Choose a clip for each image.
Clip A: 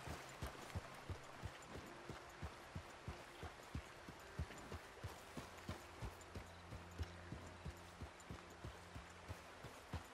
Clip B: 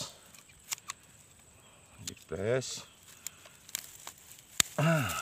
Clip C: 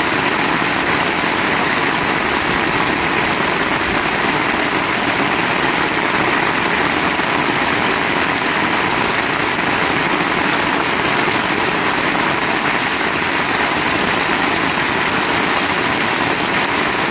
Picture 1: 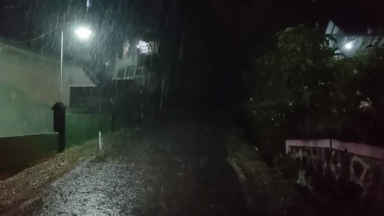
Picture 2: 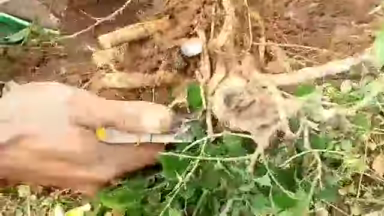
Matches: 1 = C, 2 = B